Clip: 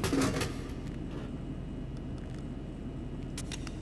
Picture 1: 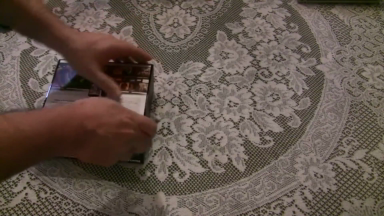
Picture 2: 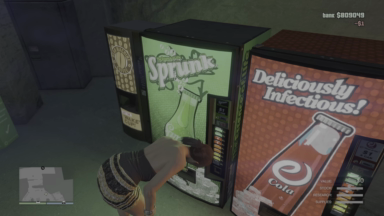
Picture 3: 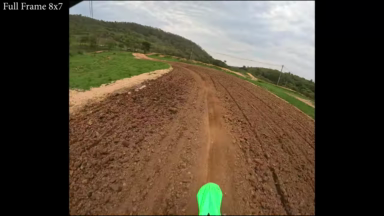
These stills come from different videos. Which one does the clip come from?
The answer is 2